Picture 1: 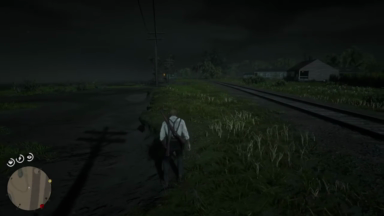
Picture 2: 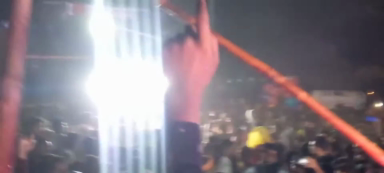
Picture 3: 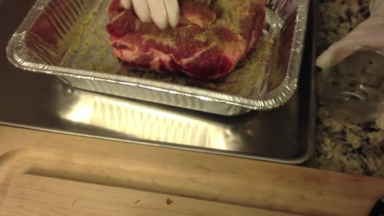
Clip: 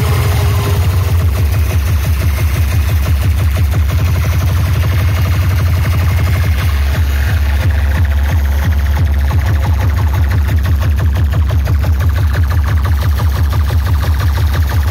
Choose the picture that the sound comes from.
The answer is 2